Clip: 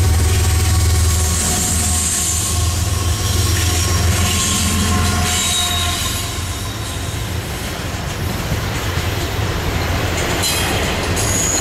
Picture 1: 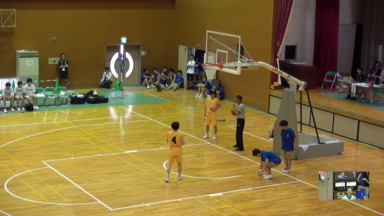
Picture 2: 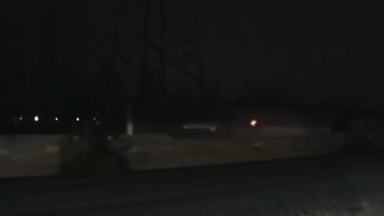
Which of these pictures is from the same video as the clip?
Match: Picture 2